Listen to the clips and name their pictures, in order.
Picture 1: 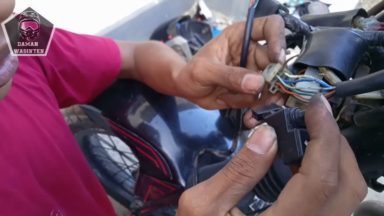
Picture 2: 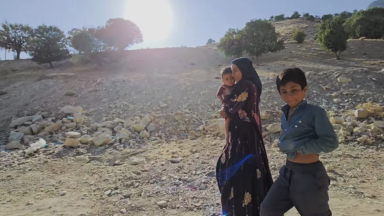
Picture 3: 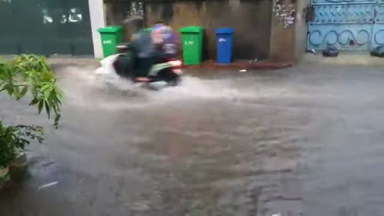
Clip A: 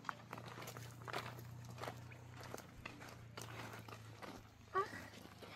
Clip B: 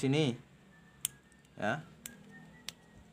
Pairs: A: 2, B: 1